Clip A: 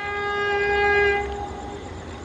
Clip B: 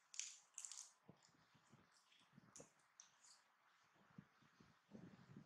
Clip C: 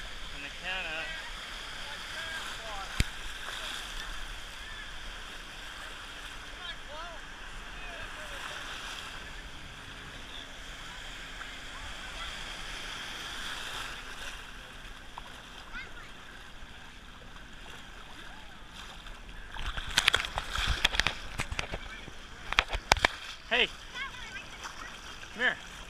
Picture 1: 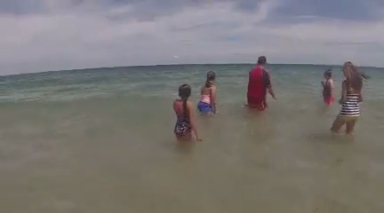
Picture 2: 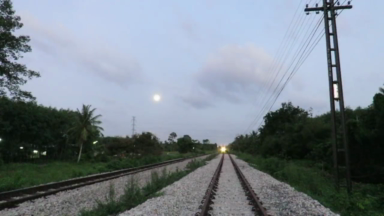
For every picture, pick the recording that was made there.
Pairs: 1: C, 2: A